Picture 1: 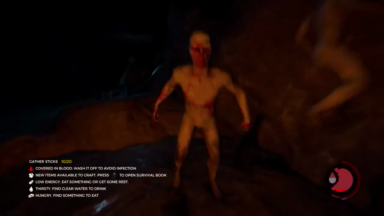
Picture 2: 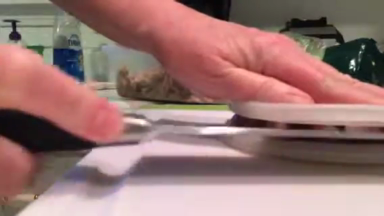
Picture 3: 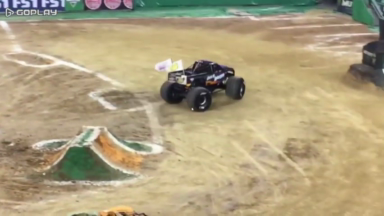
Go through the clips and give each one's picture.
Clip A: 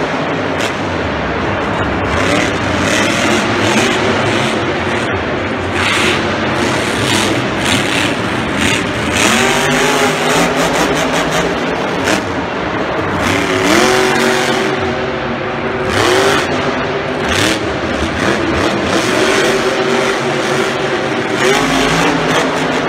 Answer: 3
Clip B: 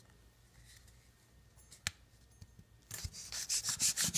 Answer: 2